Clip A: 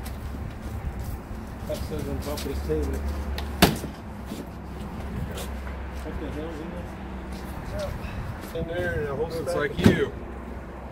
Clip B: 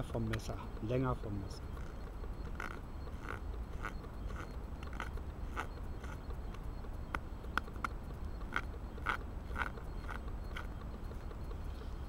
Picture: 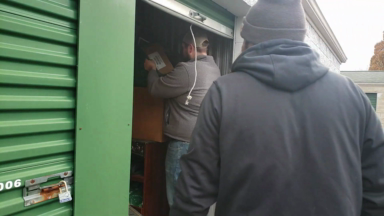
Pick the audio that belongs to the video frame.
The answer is A